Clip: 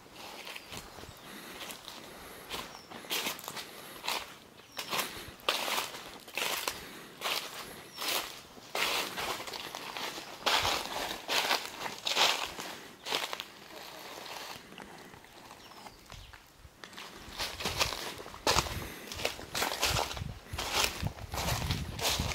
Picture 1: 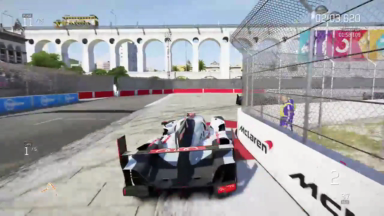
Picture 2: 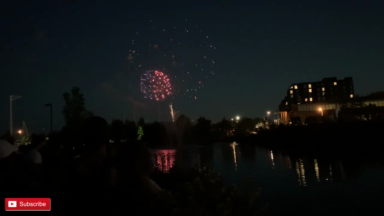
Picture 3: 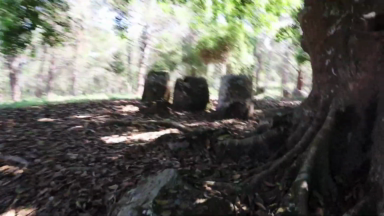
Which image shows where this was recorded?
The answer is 3